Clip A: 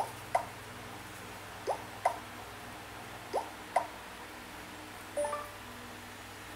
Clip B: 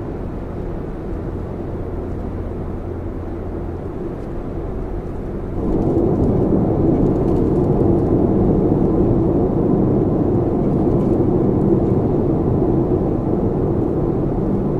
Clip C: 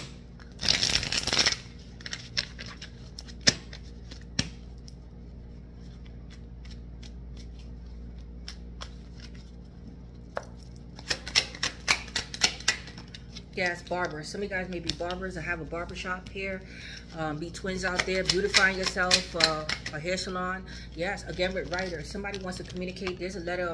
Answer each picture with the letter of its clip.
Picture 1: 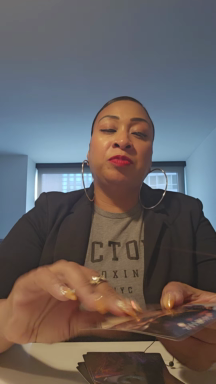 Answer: C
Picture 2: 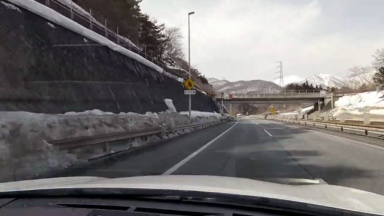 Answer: B